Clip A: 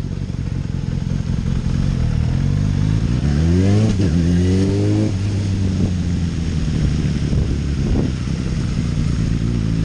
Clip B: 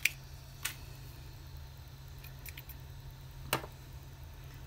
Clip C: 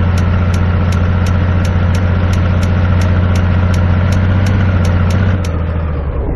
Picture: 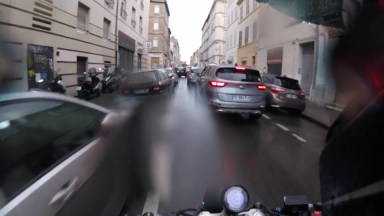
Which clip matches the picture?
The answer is A